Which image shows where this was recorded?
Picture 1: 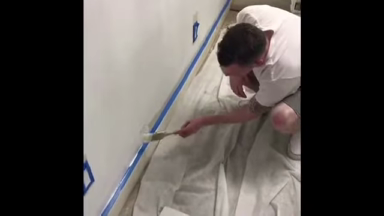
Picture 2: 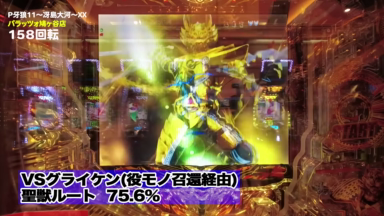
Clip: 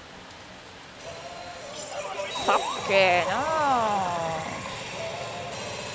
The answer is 2